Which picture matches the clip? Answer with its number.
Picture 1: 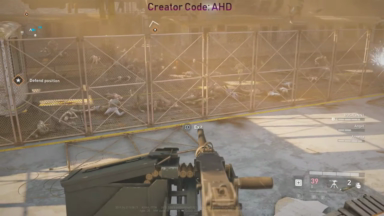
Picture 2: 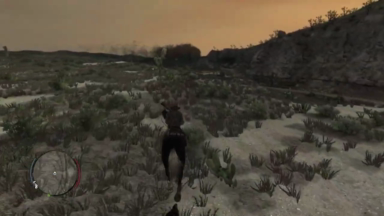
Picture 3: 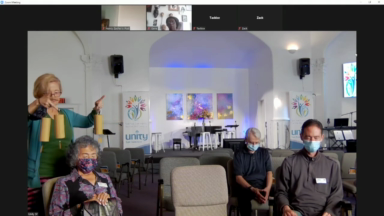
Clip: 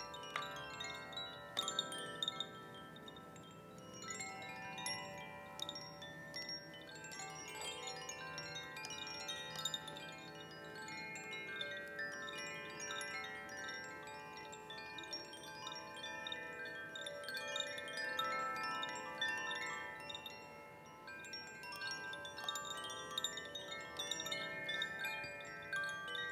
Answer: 3